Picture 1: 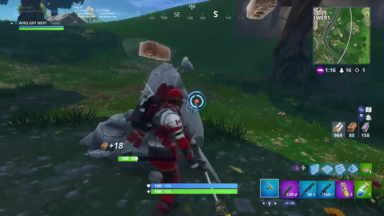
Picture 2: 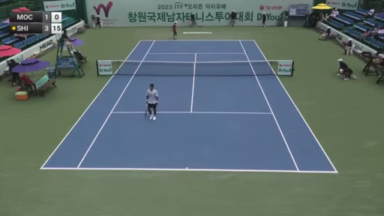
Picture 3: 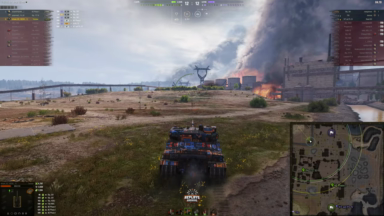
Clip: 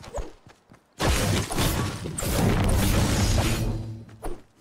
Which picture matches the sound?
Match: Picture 1